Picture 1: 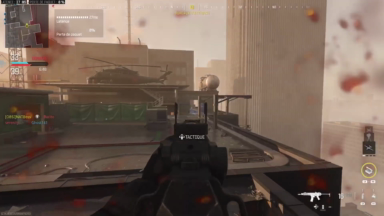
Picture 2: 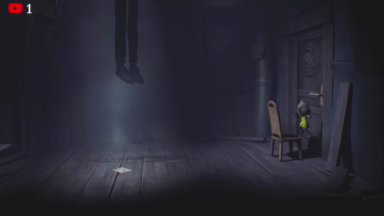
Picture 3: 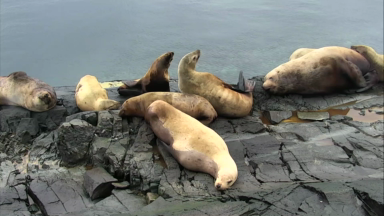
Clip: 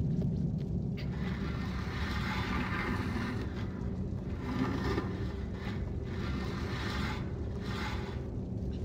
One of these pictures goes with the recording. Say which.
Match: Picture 2